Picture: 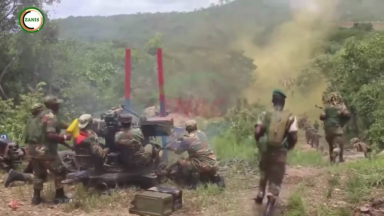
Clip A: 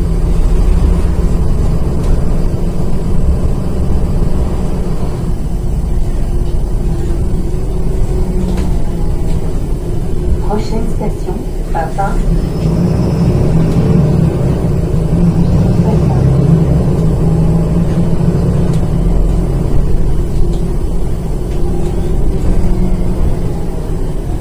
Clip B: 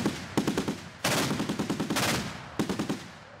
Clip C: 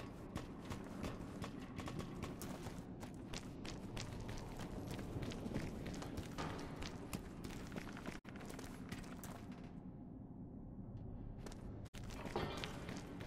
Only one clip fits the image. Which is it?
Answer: B